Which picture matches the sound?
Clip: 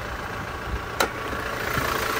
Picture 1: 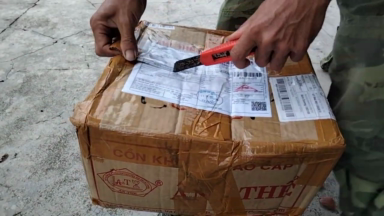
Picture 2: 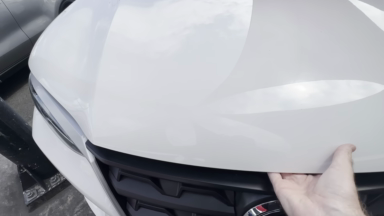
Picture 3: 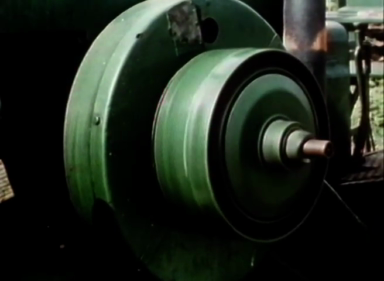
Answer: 2